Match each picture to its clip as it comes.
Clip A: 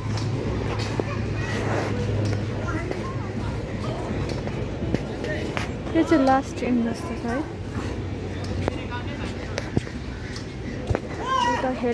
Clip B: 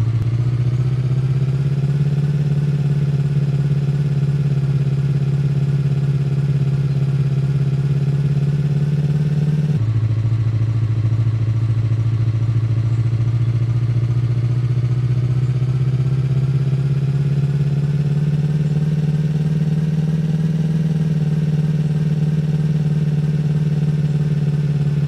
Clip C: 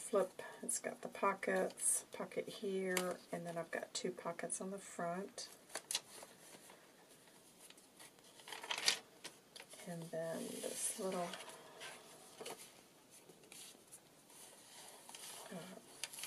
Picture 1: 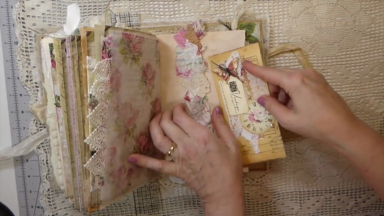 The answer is C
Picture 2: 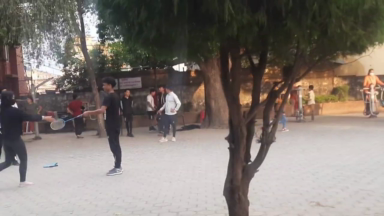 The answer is A